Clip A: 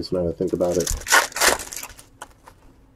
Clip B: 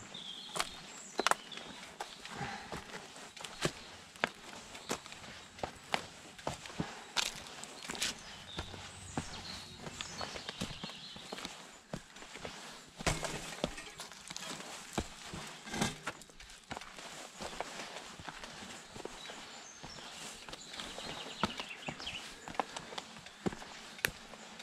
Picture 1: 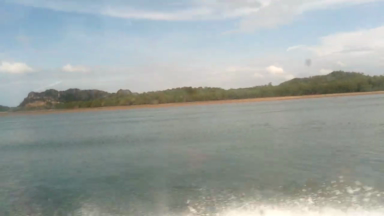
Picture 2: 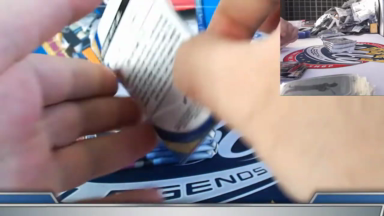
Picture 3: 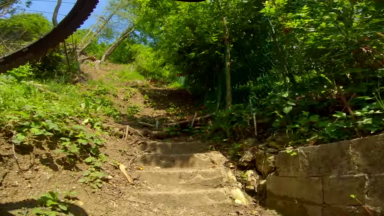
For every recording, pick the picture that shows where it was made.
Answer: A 2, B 3